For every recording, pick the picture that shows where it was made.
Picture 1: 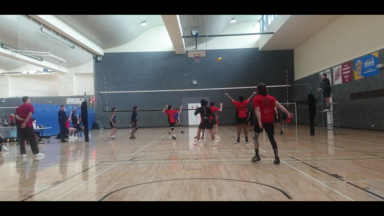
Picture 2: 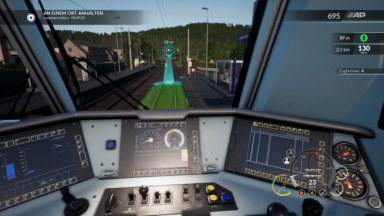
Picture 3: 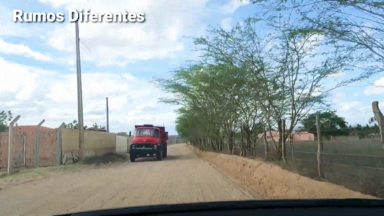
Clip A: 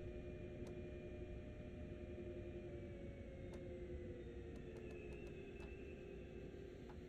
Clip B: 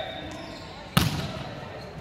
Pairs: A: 2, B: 1